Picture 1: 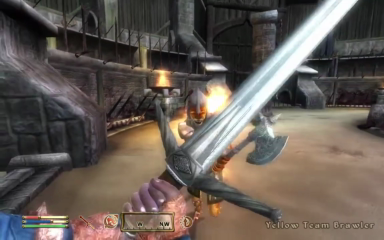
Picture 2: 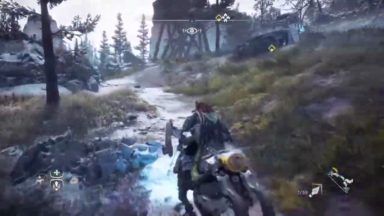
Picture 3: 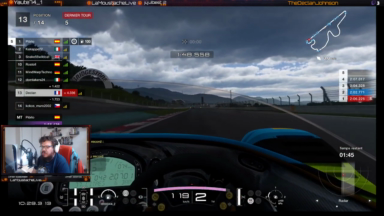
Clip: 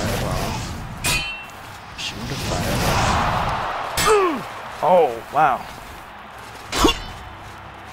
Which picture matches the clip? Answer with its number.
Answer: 1